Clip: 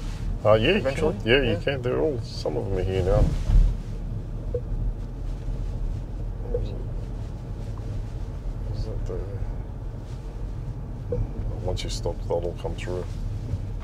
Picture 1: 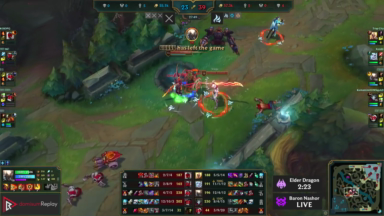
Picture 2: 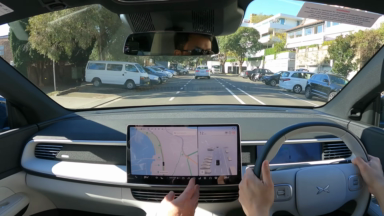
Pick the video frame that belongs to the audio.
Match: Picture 2